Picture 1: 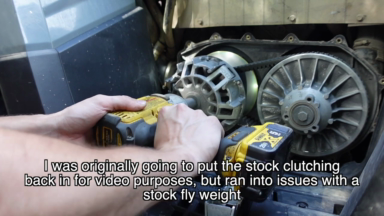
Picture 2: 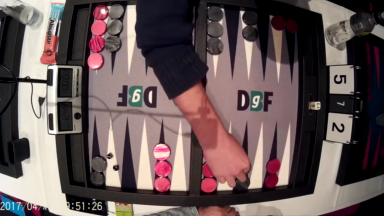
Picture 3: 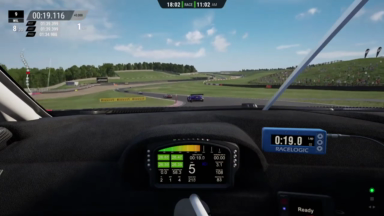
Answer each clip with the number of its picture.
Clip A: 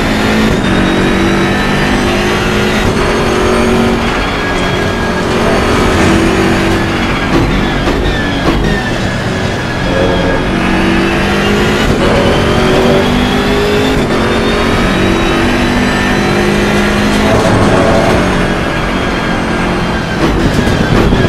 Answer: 3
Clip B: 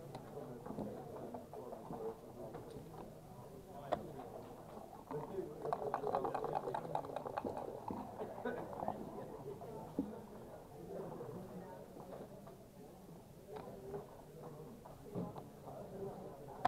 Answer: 2